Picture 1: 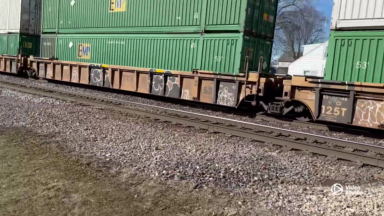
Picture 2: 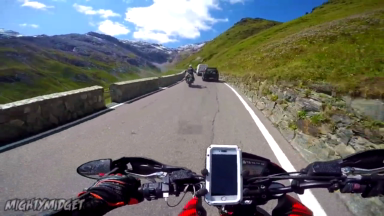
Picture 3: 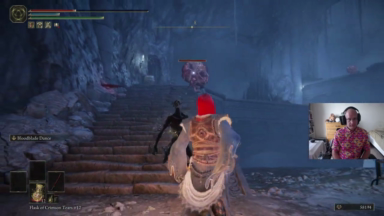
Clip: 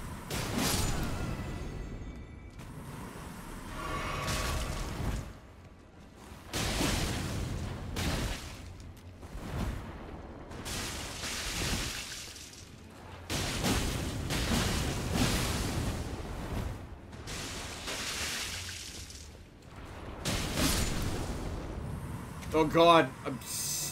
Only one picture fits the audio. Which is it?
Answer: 3